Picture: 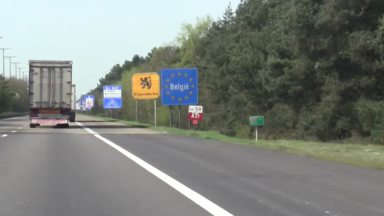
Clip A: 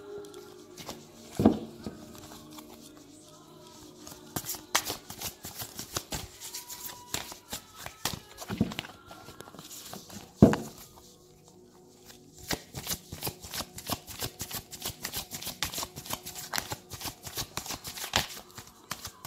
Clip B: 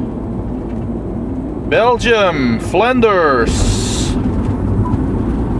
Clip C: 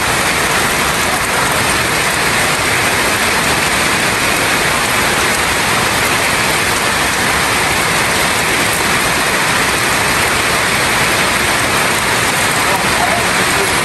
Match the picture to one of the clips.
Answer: B